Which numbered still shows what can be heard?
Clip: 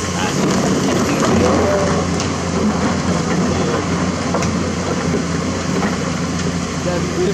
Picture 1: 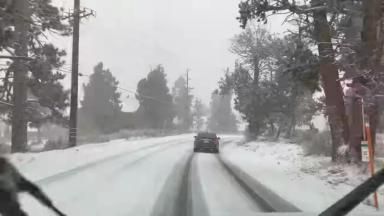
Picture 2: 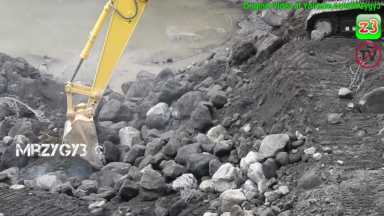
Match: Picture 2